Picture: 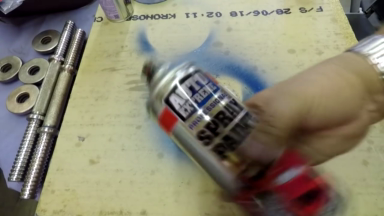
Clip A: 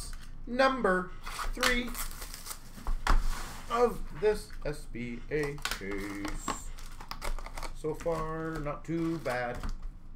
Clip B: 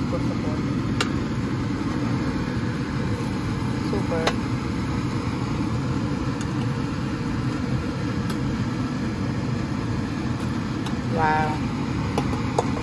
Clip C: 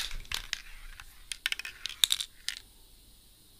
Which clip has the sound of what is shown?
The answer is C